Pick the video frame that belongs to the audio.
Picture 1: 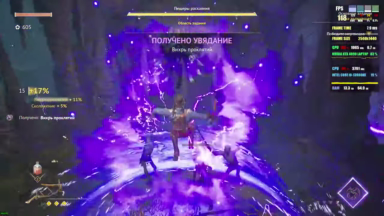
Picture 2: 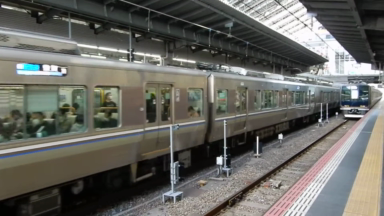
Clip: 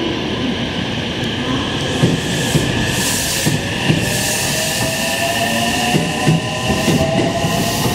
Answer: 2